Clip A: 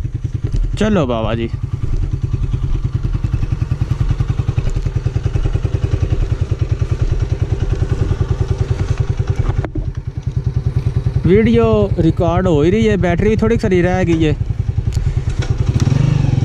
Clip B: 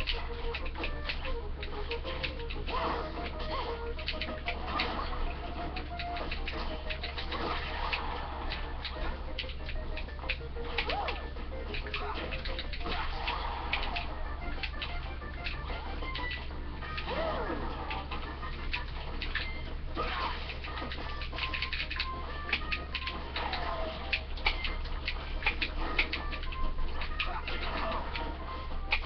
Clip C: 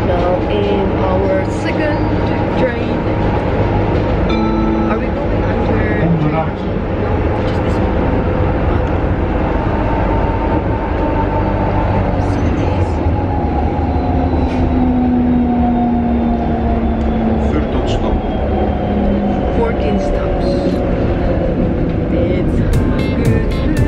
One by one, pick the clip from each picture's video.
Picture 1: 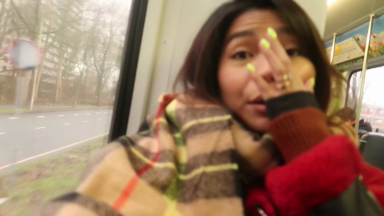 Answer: C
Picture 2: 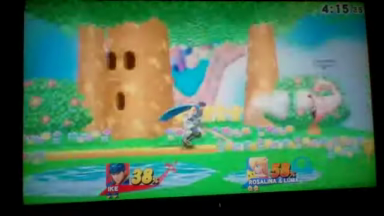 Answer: B